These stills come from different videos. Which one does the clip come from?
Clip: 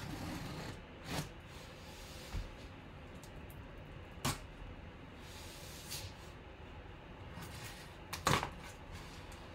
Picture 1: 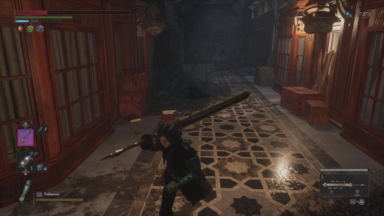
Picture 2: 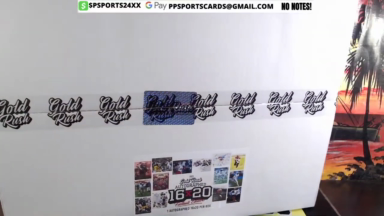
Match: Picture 2